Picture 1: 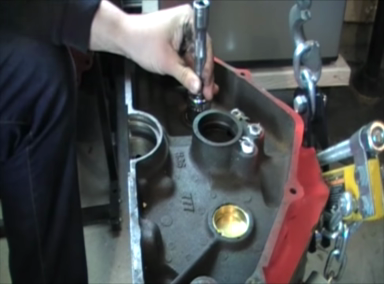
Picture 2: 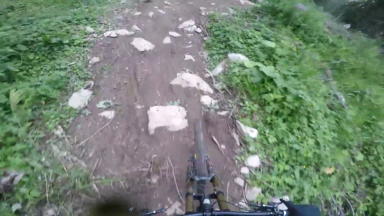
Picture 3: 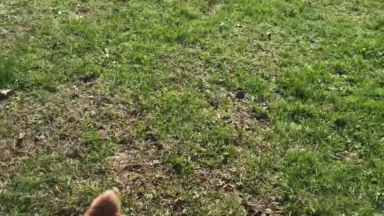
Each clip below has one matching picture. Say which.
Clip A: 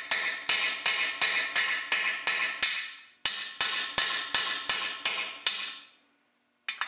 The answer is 1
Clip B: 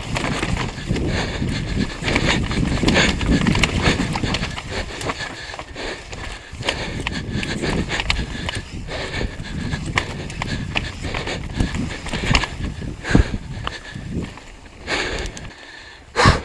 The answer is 2